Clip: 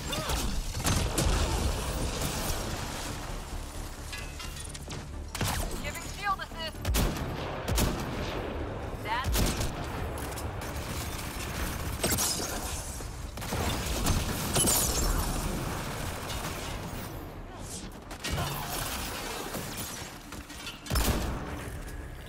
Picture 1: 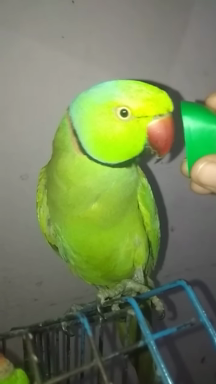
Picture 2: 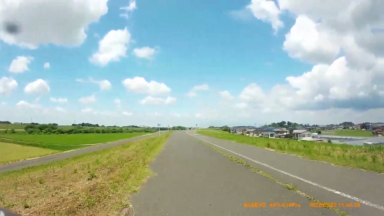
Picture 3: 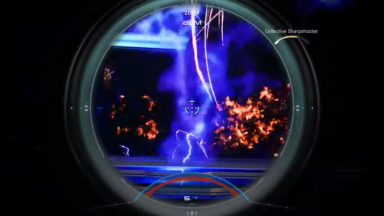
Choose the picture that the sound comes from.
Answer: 3